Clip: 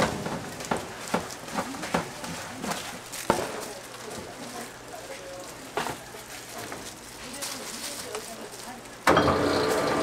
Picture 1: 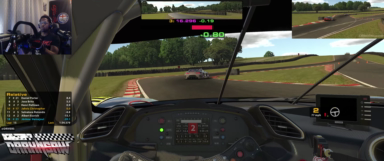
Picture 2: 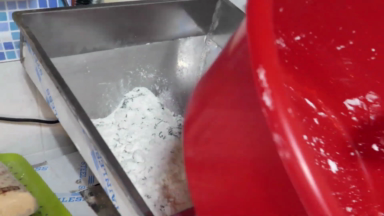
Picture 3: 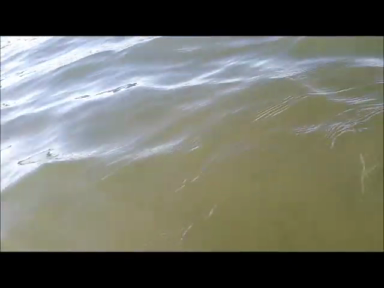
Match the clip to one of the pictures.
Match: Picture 2